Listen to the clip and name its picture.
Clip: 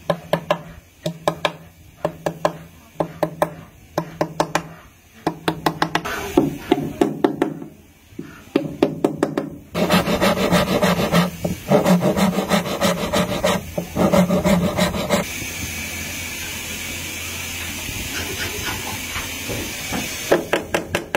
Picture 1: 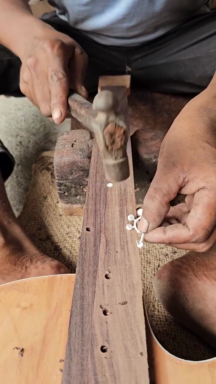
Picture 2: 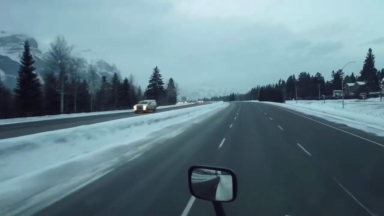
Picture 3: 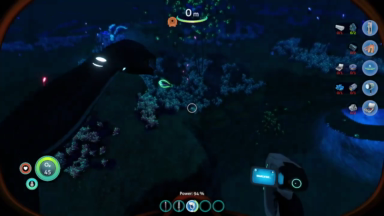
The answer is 1